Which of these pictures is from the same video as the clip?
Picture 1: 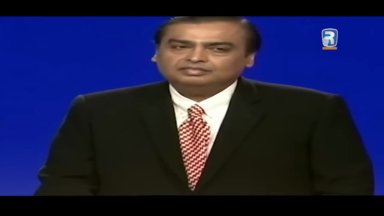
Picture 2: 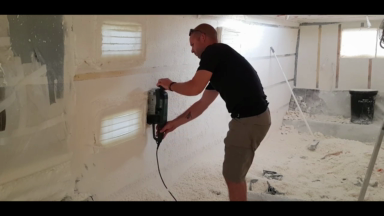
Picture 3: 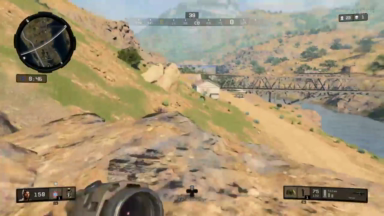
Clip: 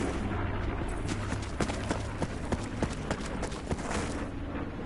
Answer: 3